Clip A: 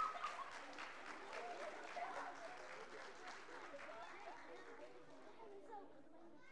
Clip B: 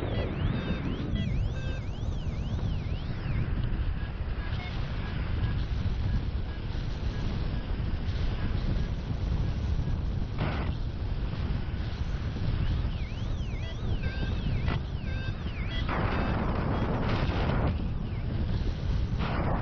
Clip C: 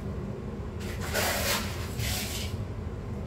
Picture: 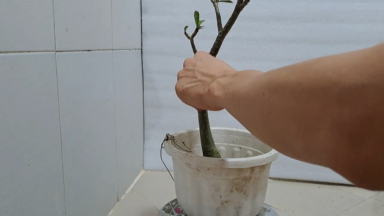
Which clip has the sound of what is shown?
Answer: C